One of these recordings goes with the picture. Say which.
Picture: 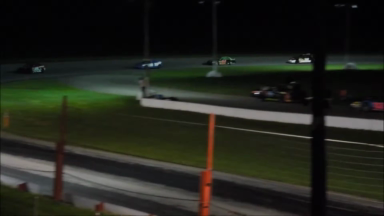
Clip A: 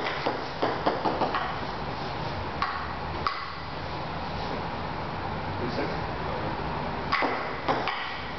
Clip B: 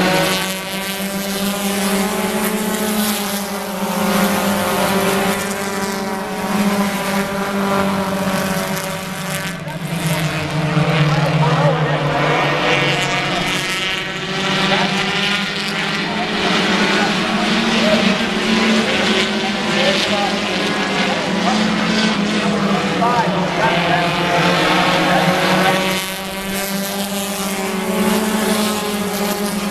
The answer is B